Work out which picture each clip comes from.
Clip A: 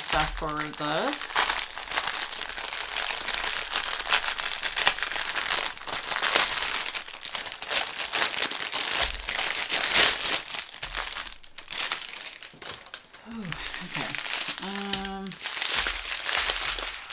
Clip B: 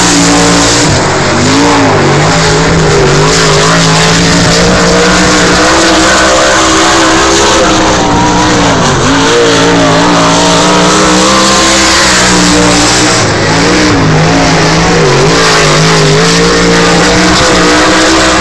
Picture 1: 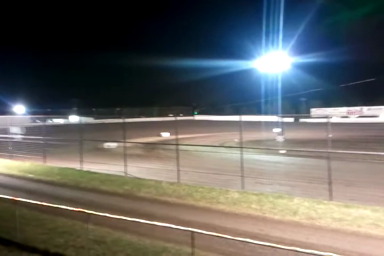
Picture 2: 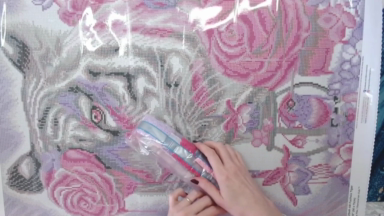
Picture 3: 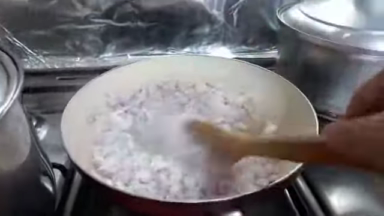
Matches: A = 2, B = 1